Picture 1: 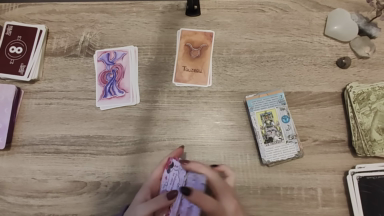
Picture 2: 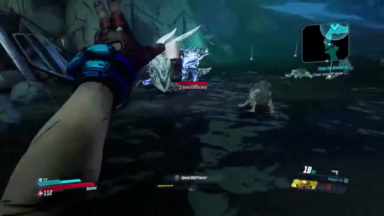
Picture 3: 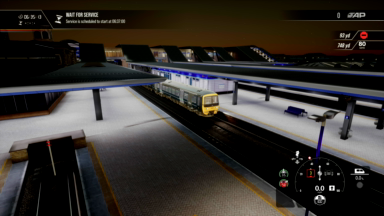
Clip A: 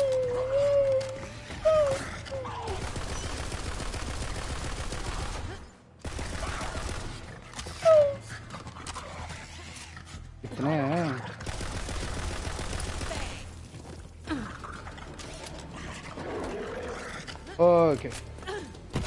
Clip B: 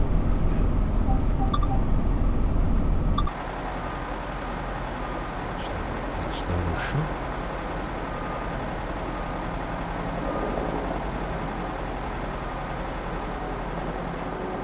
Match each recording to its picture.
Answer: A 2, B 3